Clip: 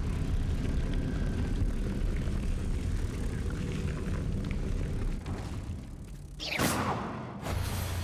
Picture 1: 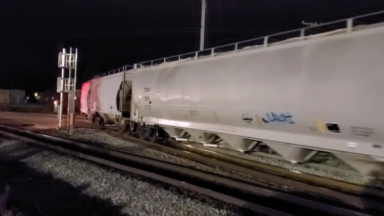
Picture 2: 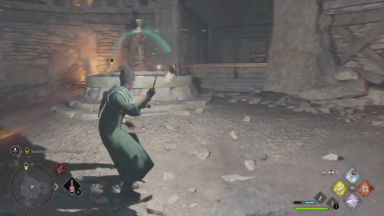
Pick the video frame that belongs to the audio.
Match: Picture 2